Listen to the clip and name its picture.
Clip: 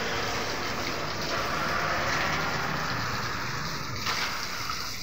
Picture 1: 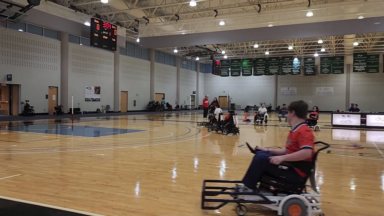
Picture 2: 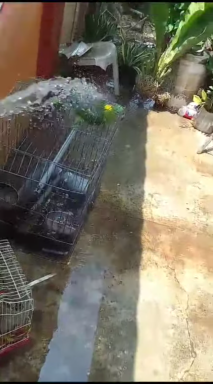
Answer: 2